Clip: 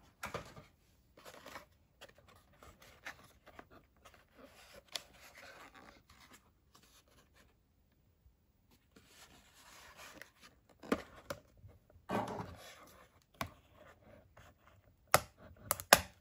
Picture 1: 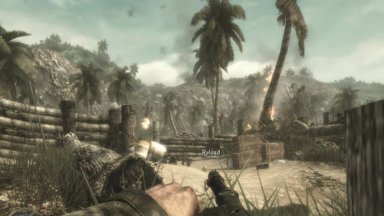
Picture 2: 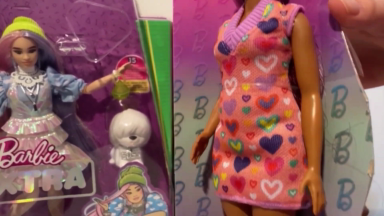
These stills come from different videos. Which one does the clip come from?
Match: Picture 2